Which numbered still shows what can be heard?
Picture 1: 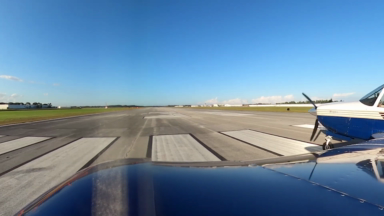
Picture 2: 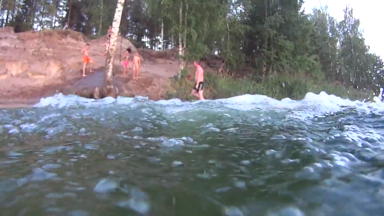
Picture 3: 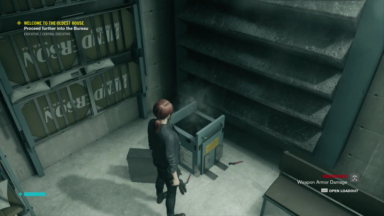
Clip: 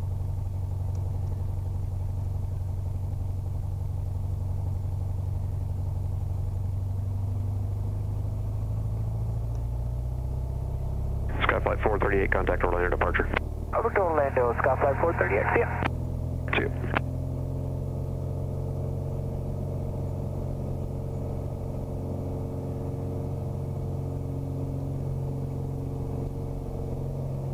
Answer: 1